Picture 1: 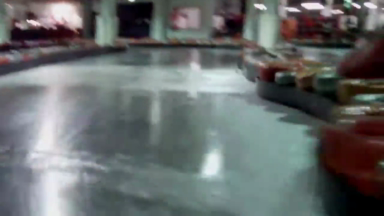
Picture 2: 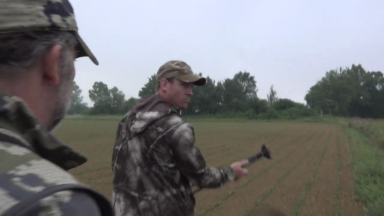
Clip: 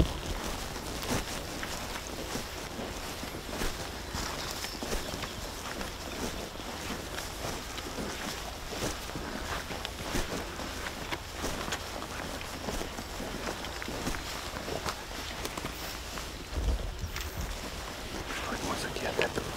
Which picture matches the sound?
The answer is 2